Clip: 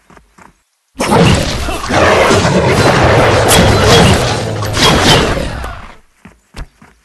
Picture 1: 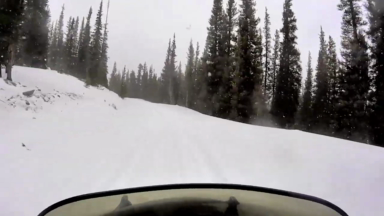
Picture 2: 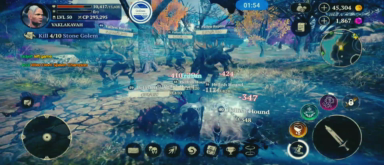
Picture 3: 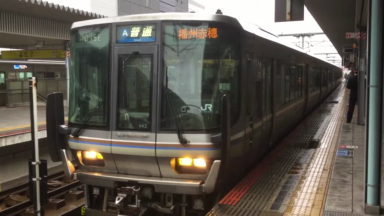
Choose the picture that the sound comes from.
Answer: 2